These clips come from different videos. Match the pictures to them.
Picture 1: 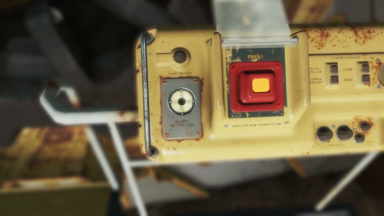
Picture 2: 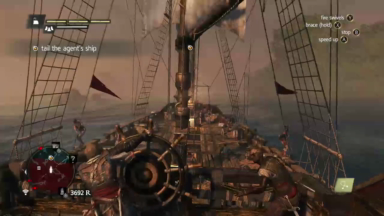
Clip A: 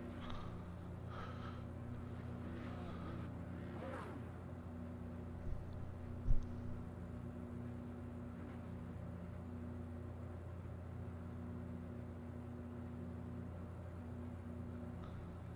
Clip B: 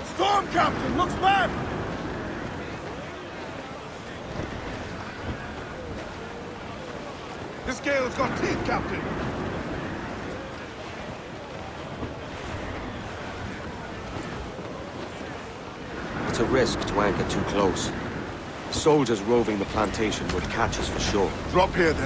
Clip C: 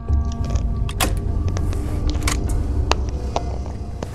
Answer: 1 C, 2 B